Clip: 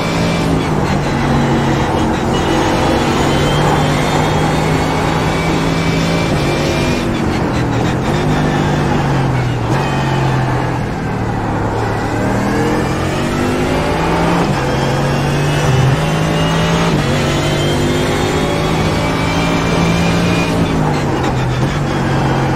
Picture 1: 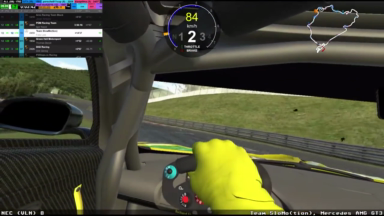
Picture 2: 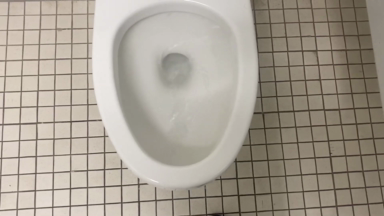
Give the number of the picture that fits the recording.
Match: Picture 1